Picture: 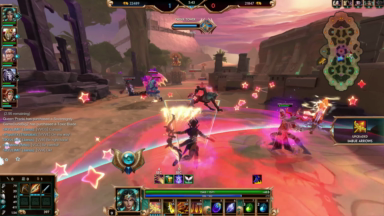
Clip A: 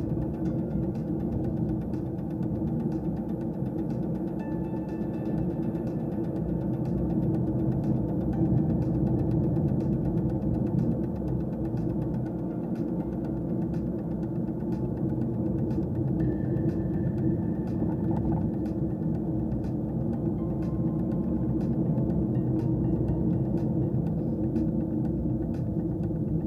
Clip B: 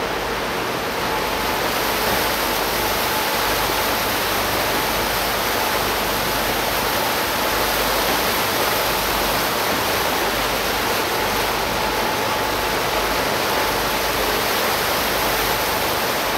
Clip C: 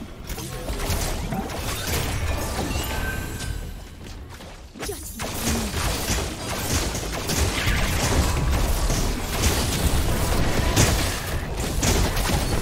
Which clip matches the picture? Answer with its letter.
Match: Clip C